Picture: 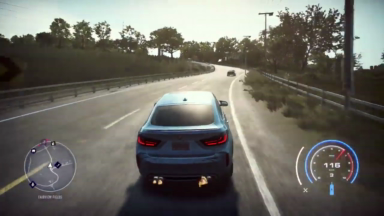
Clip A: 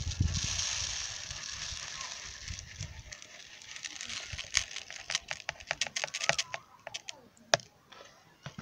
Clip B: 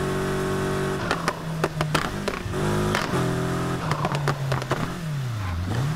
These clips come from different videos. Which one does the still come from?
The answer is B